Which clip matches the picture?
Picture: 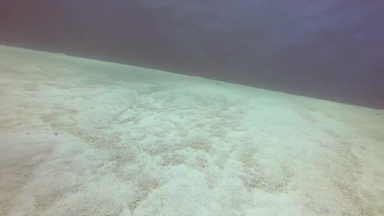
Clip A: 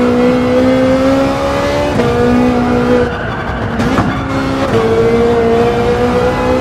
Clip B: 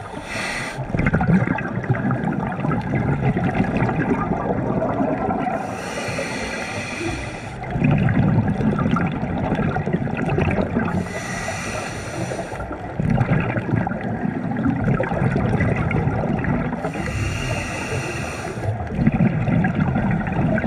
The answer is B